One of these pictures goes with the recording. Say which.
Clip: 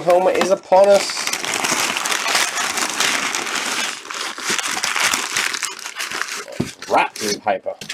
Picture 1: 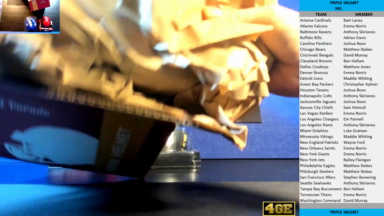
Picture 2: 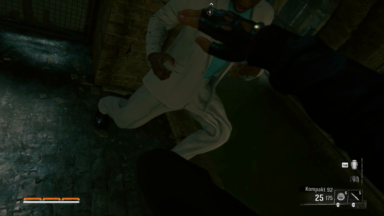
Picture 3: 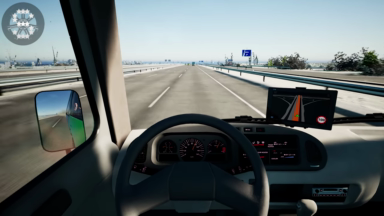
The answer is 1